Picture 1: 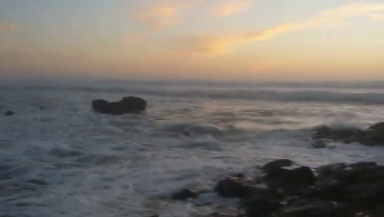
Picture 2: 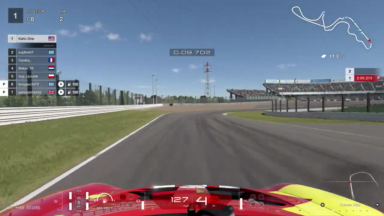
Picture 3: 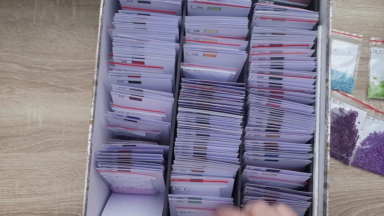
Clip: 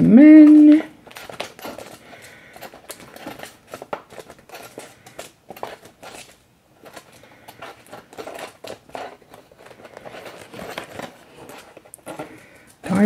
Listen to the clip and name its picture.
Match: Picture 3